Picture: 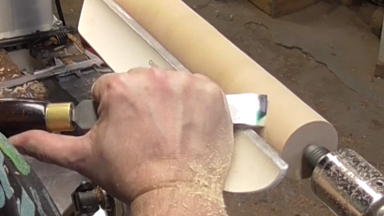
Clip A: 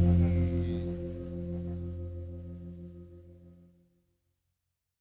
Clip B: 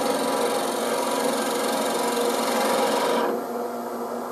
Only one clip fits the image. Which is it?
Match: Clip B